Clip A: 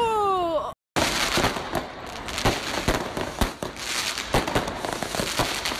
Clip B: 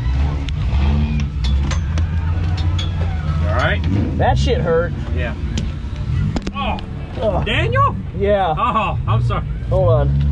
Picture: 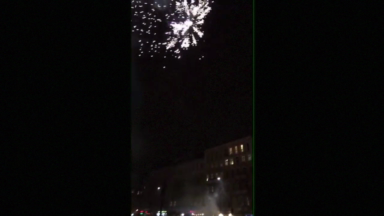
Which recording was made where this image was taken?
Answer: A